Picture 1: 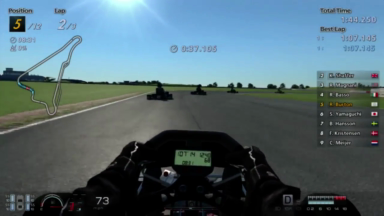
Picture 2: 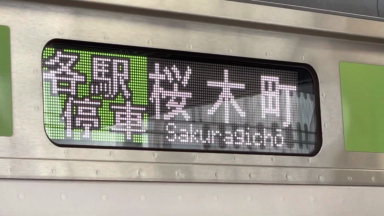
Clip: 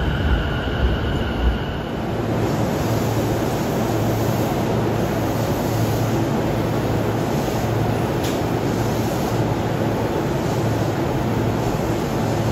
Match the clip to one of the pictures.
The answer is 2